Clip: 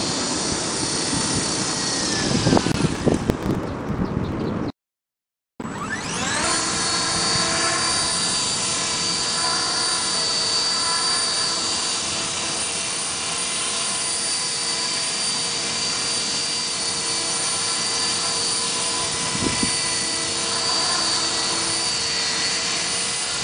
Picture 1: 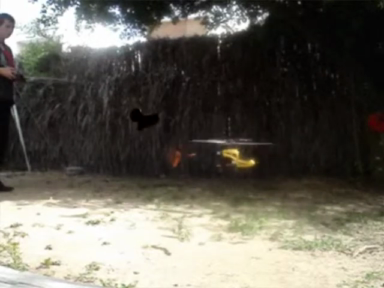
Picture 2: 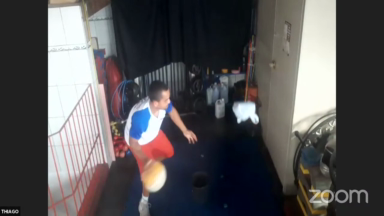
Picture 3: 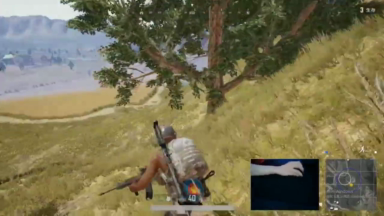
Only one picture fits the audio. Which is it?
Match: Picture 1